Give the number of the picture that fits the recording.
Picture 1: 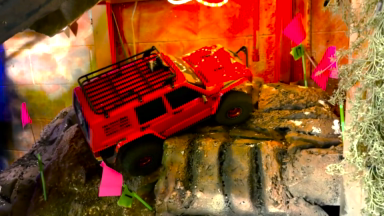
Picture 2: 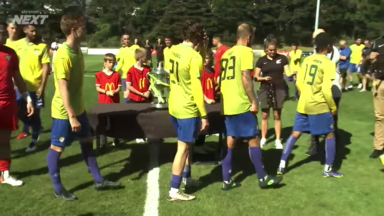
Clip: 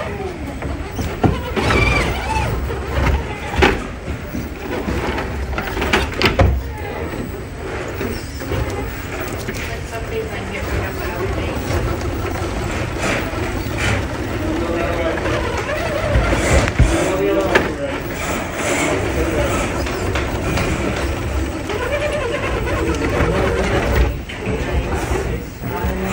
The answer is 1